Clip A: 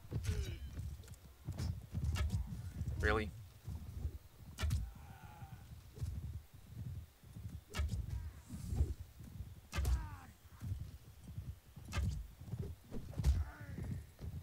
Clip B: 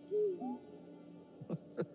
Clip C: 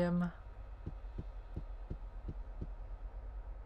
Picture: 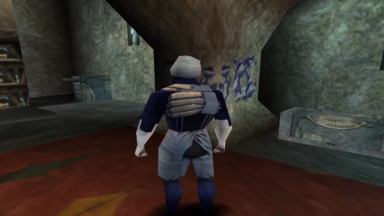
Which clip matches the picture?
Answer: C